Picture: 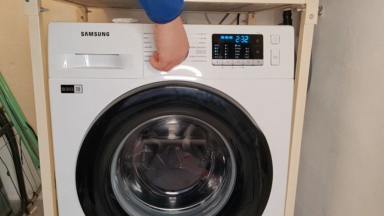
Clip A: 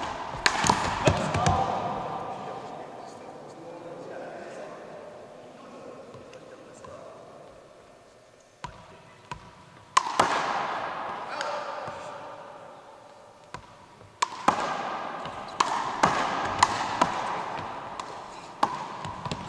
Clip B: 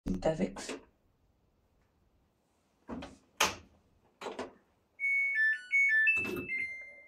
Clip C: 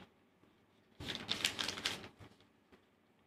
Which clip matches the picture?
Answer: B